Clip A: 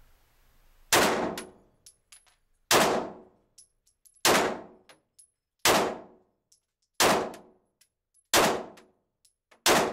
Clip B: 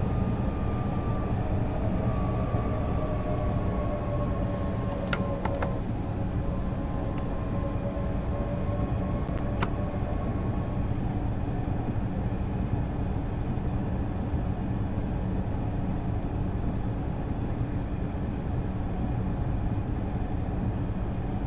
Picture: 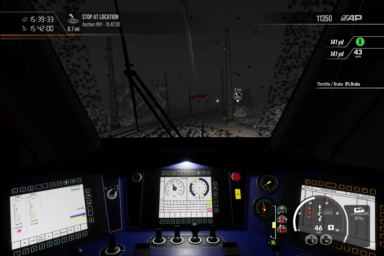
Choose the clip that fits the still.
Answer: B